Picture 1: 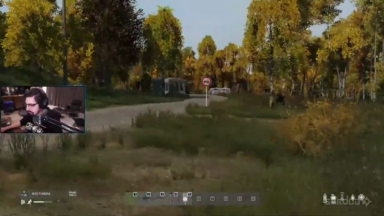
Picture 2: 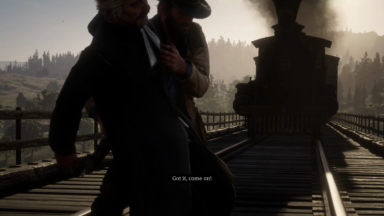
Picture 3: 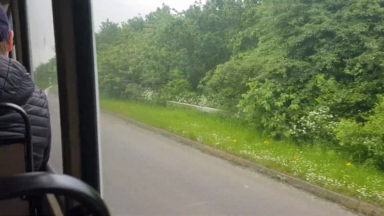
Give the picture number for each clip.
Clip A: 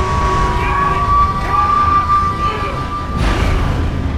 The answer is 2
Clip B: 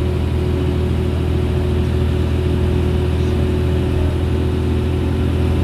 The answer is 3